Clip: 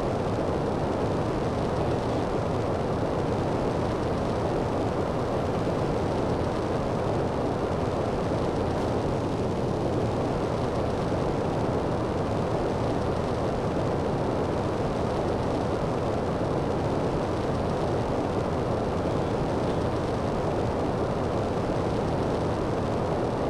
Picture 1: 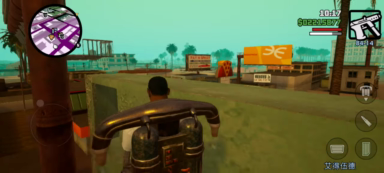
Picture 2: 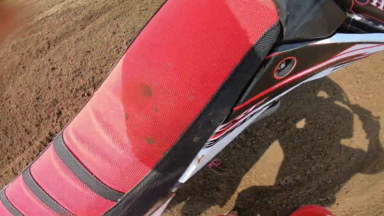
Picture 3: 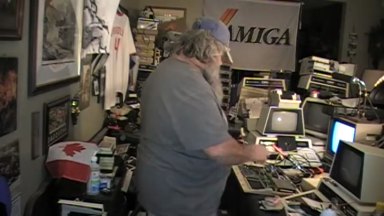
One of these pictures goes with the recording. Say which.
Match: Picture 1